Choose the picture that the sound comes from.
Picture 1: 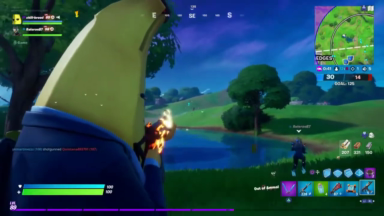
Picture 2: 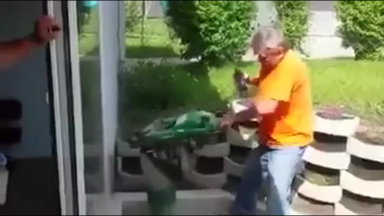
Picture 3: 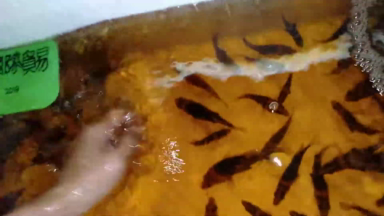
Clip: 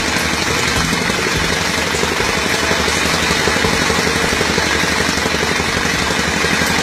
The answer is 2